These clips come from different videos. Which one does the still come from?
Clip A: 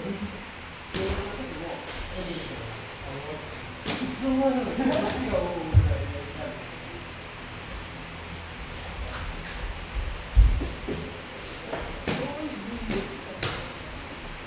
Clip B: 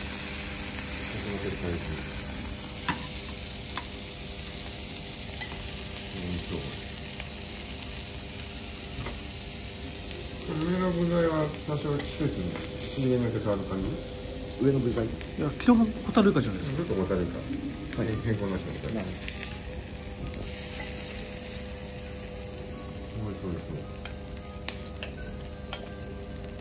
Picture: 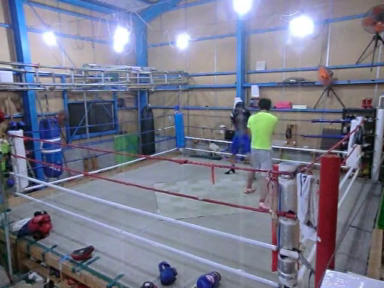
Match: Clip A